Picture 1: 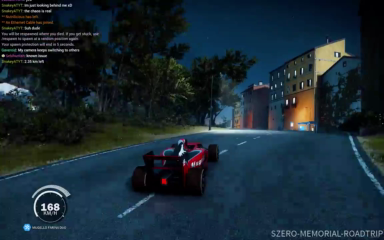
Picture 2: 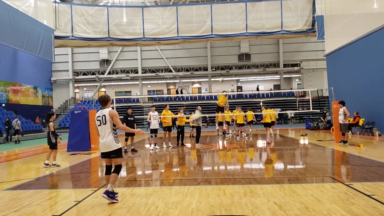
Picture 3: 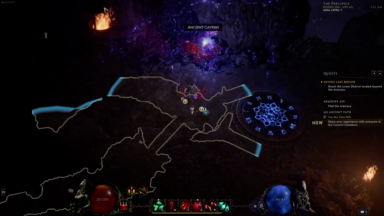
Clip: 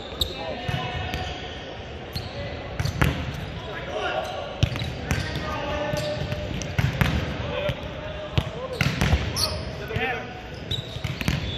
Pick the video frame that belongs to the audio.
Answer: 2